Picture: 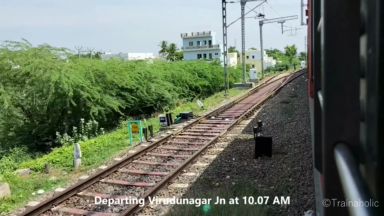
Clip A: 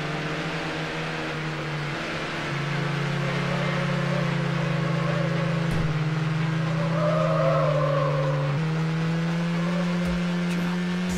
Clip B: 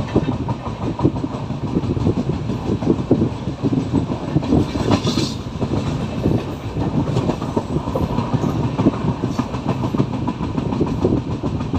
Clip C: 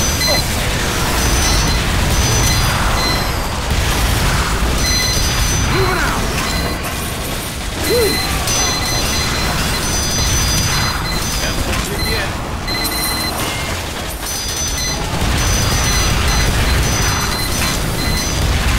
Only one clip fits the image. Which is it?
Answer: B